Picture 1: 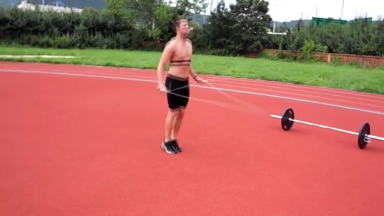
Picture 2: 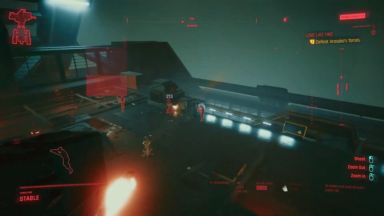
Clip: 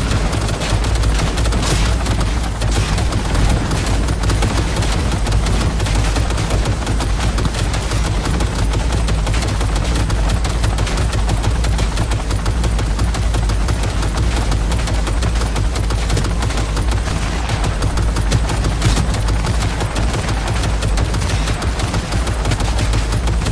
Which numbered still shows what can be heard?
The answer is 2